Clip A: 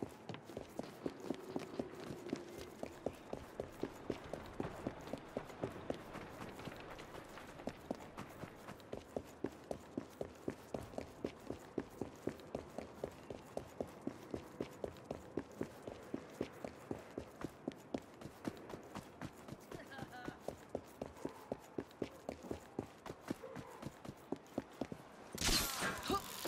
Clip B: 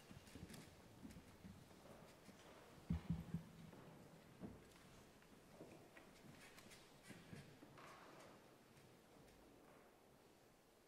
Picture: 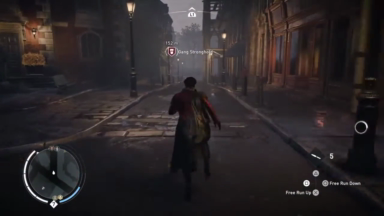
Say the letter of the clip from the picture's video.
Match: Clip A